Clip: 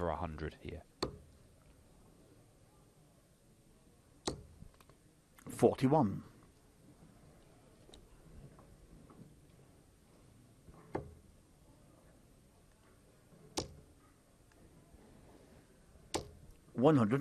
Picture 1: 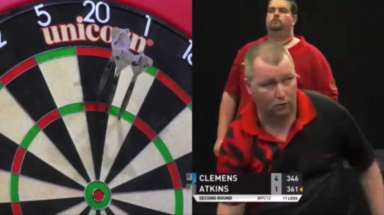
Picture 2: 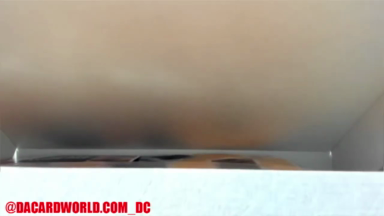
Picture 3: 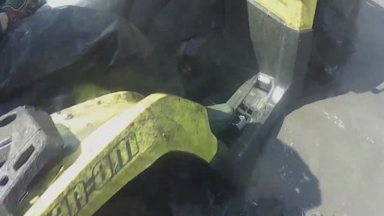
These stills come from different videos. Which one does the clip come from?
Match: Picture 1